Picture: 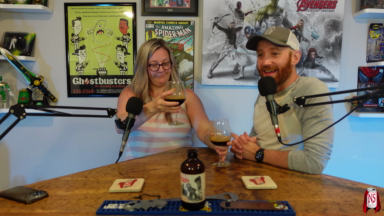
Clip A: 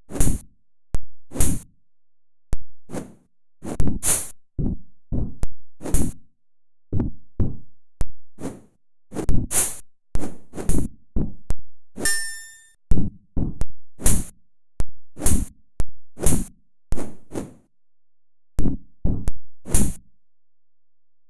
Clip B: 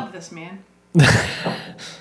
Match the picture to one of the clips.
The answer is B